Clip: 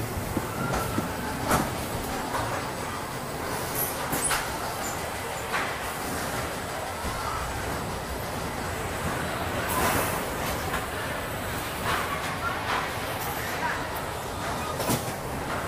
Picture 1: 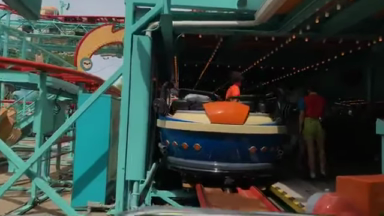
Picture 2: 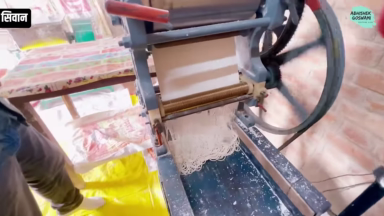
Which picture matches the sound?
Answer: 1